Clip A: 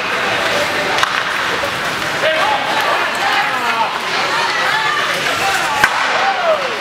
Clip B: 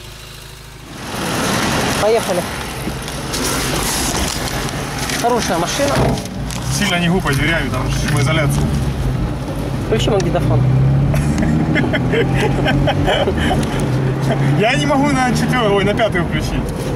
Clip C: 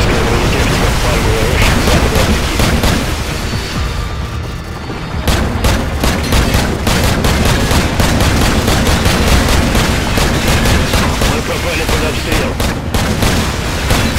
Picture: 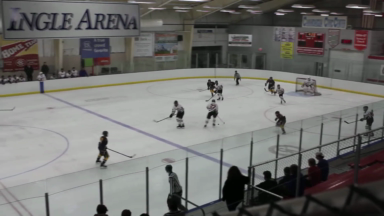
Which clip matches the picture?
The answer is A